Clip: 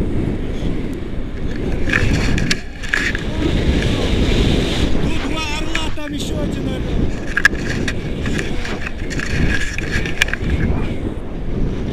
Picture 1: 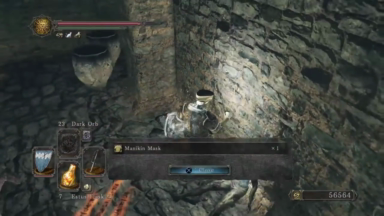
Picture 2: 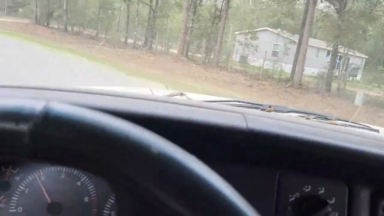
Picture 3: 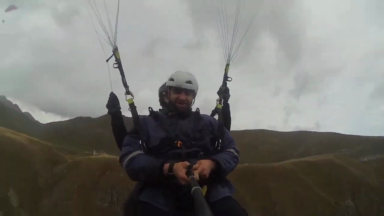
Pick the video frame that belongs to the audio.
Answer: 3